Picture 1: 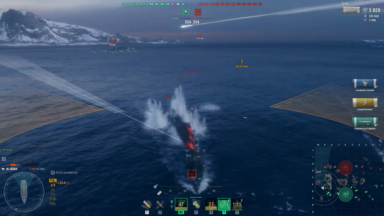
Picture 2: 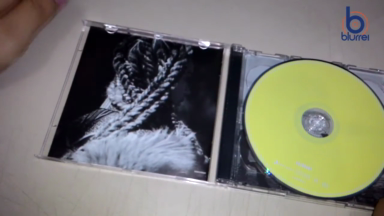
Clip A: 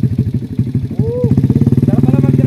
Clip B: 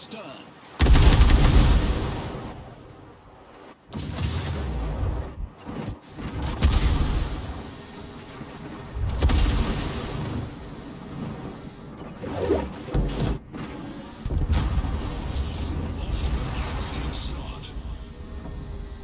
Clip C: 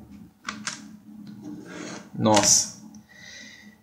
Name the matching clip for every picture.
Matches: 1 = B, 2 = C